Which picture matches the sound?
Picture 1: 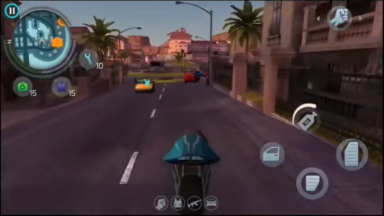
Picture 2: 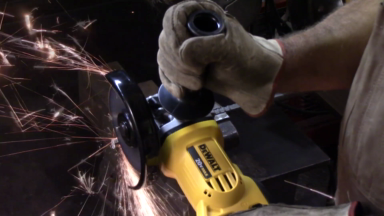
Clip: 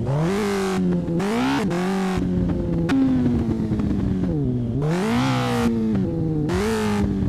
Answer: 1